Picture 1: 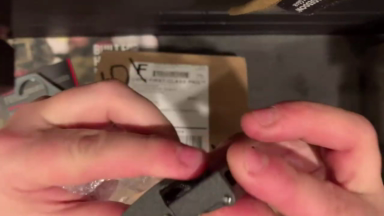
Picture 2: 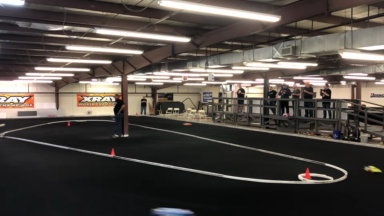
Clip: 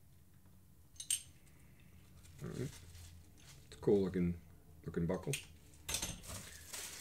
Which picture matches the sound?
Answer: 1